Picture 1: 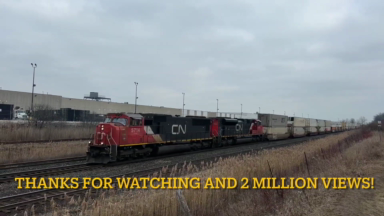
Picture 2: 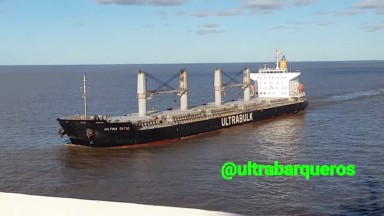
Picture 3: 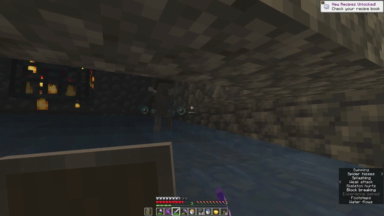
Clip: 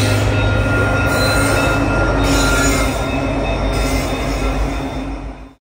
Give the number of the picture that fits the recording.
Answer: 1